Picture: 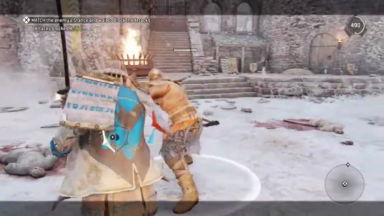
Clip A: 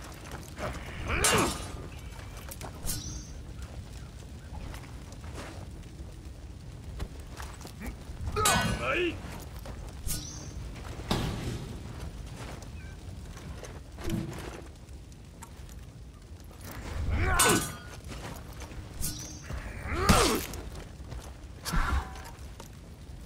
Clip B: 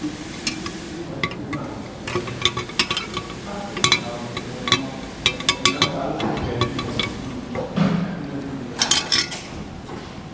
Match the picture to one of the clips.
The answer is A